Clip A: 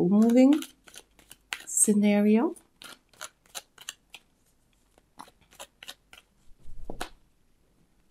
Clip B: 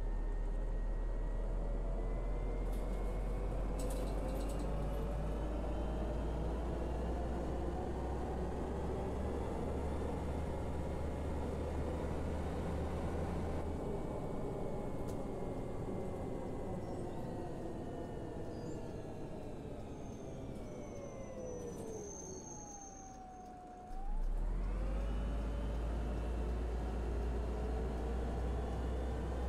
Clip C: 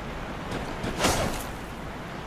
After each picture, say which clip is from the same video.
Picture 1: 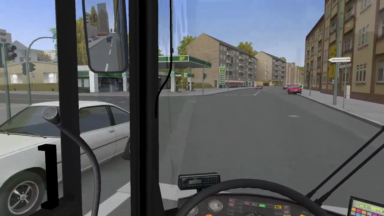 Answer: B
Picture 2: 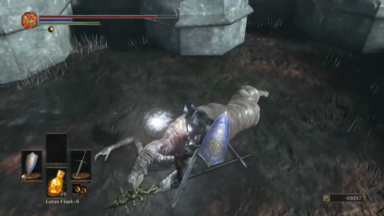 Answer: C